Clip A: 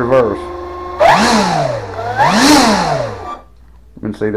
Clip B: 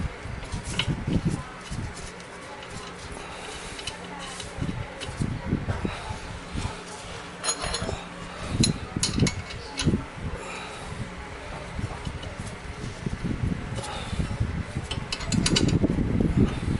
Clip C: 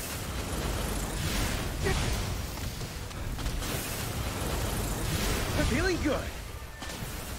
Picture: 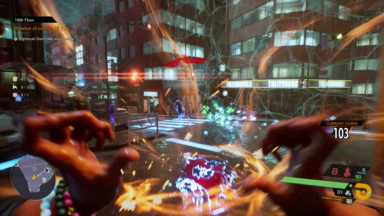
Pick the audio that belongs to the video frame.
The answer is C